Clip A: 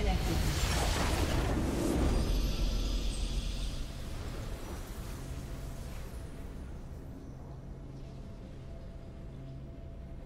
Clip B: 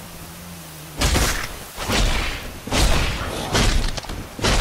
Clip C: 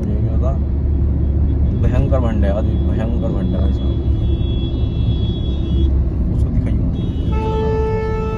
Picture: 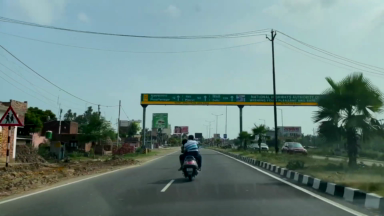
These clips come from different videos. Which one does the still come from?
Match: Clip C